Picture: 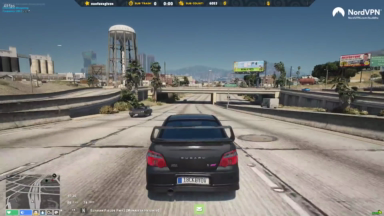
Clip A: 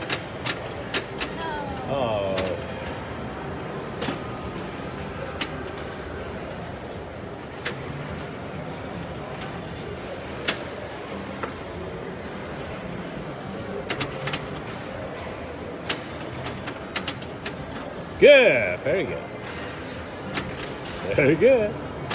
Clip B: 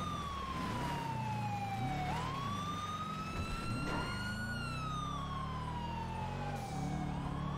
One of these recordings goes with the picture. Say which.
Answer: B